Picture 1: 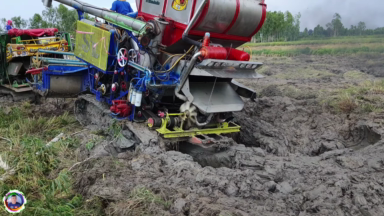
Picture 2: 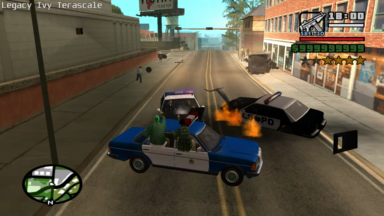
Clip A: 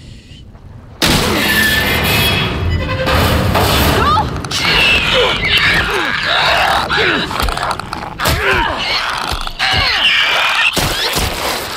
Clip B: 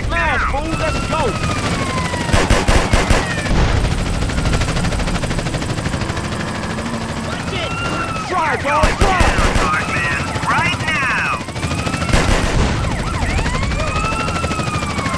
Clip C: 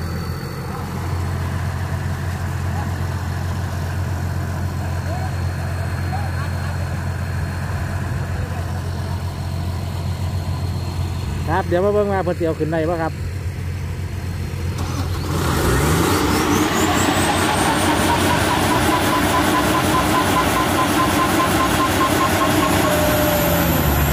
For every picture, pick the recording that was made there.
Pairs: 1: C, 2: B